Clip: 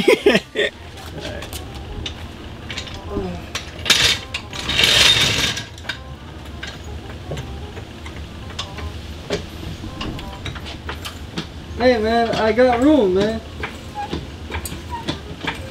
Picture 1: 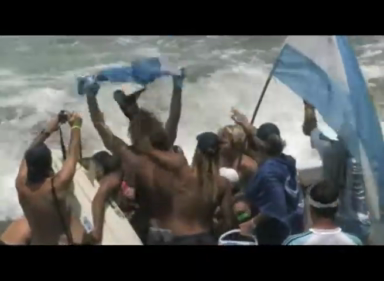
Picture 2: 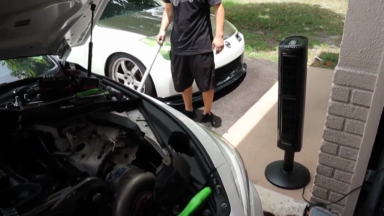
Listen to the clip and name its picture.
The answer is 2